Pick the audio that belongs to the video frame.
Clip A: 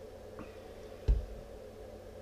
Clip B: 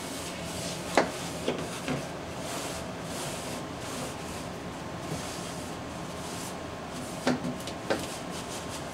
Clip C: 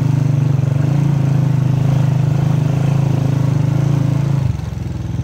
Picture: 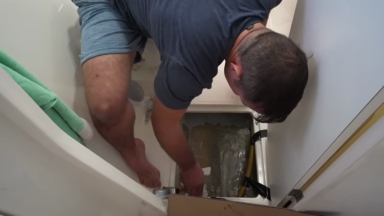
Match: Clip B